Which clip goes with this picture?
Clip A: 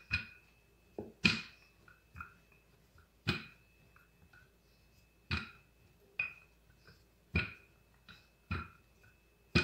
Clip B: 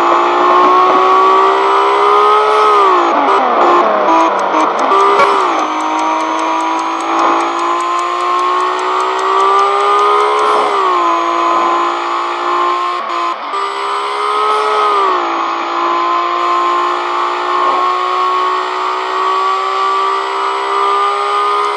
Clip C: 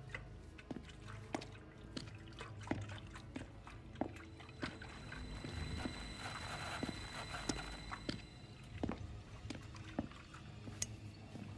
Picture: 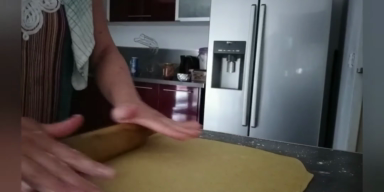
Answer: A